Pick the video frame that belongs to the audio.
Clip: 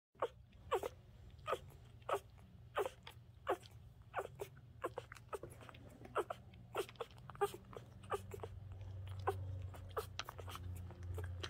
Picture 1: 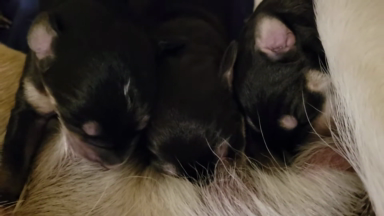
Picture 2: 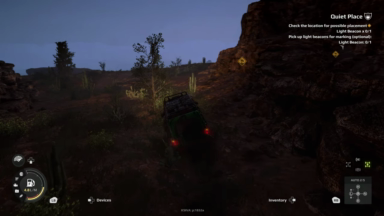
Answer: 1